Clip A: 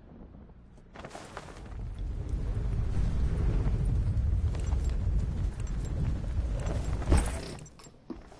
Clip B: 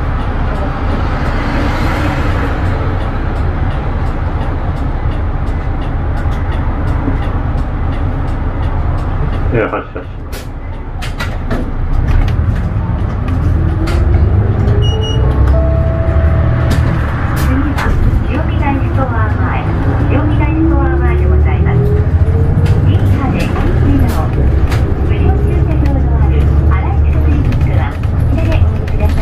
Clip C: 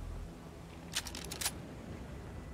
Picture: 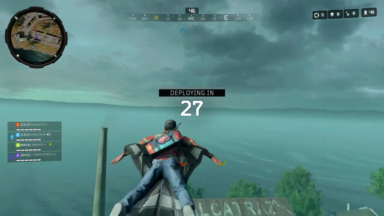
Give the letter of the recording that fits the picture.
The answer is A